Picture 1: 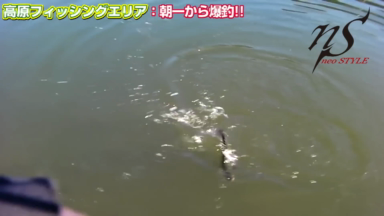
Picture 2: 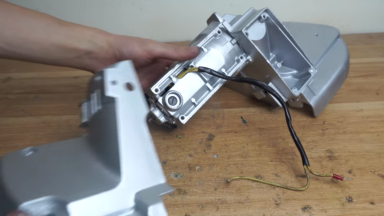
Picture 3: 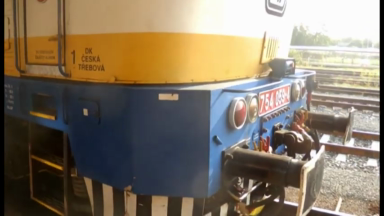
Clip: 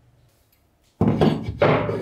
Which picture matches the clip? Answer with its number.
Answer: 2